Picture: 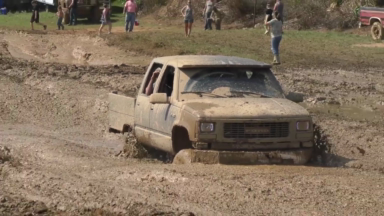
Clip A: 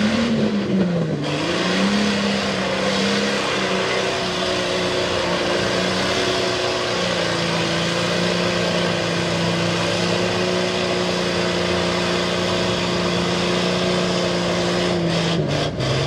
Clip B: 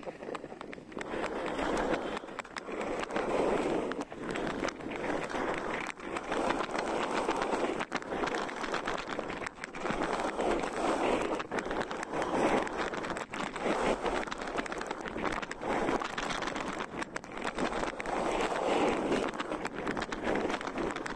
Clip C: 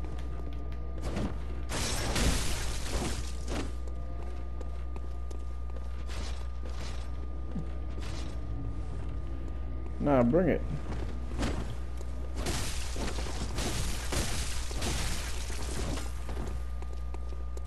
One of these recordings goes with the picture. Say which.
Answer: A